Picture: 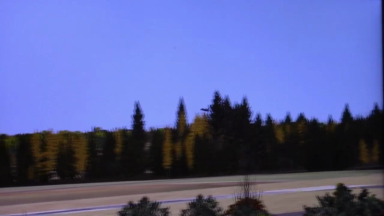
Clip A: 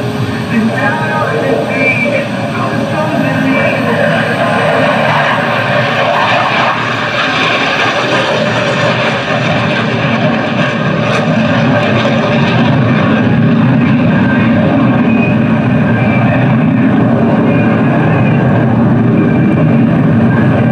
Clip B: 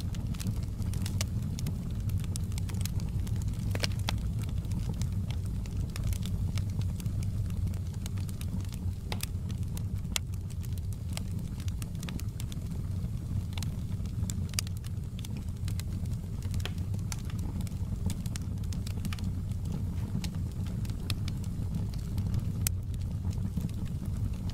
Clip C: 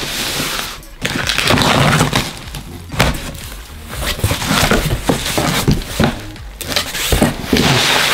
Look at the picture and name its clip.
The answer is A